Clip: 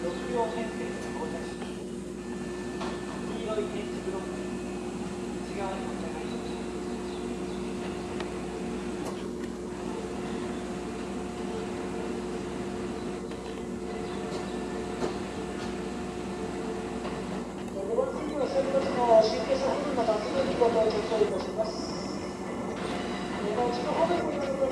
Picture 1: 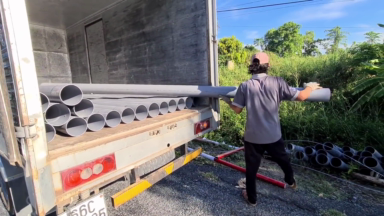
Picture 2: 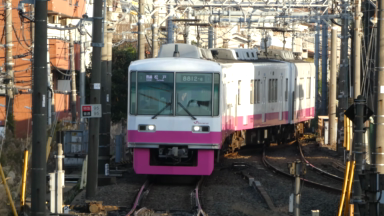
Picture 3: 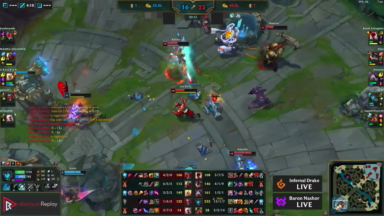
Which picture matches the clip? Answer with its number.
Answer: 2